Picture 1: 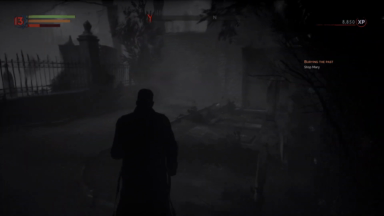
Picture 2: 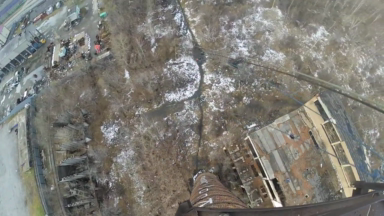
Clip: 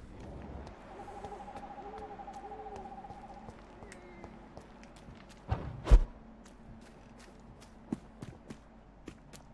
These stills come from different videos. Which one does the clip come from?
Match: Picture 1